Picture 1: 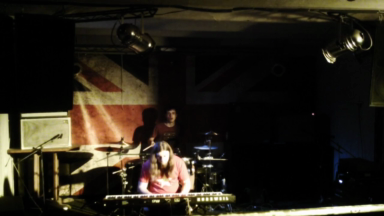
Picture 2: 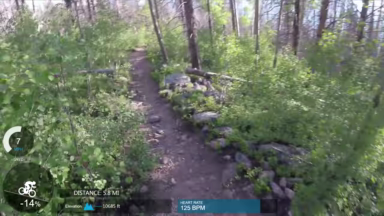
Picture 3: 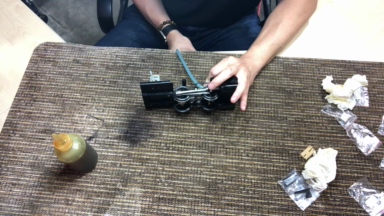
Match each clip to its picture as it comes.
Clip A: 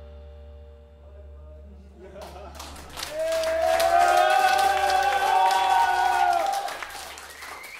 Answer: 1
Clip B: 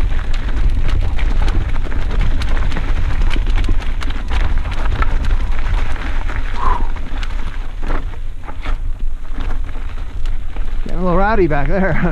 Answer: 2